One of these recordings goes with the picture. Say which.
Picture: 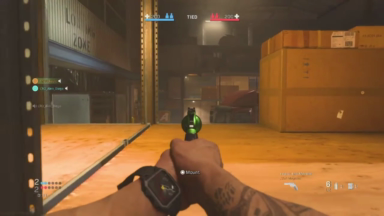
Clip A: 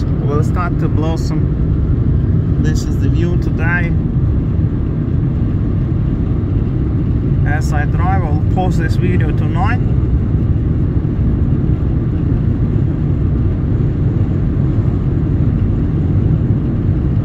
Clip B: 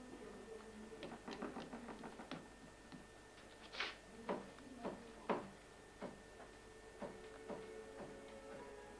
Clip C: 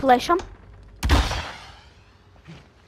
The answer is C